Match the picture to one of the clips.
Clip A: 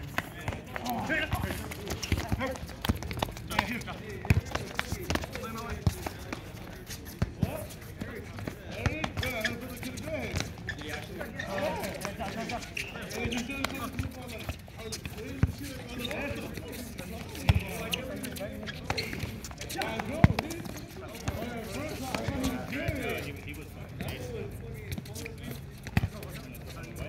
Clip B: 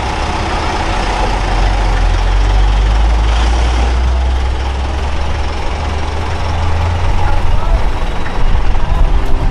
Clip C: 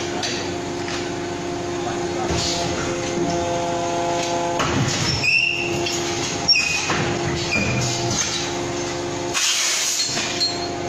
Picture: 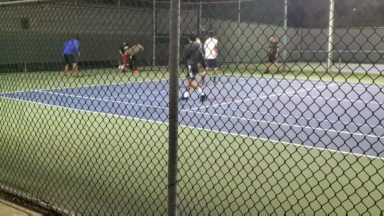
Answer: A